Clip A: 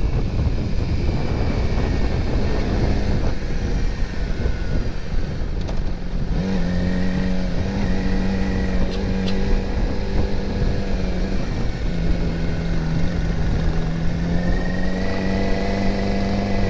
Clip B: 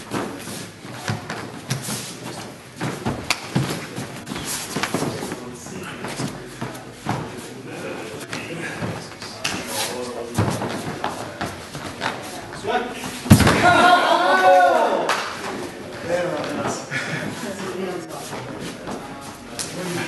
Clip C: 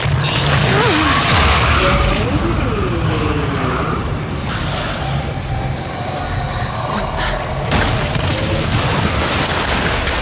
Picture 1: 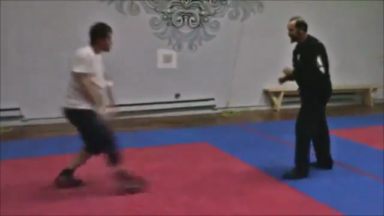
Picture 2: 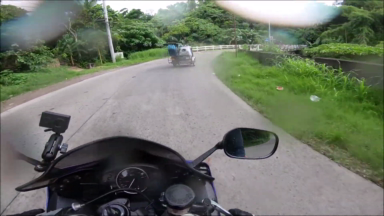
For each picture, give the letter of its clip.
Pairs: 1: B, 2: A